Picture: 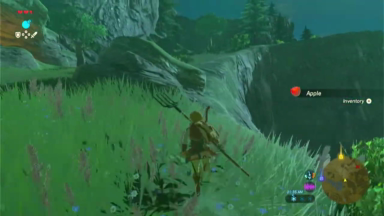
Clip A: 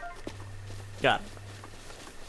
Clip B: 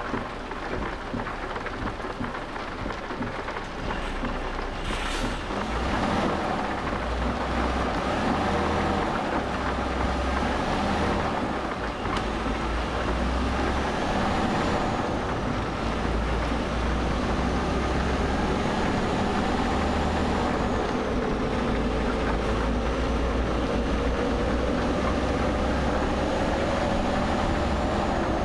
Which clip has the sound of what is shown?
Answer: A